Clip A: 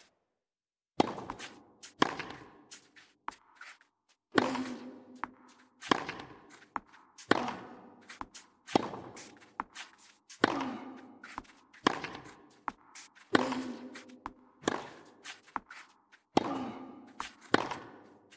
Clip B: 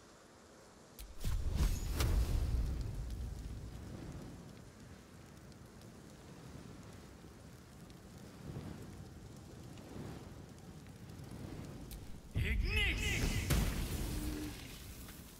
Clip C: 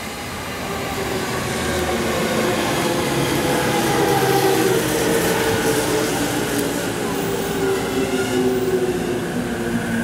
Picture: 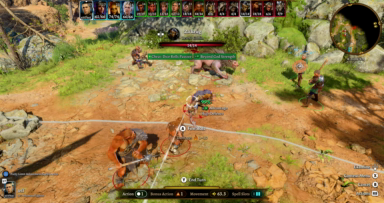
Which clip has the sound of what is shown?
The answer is B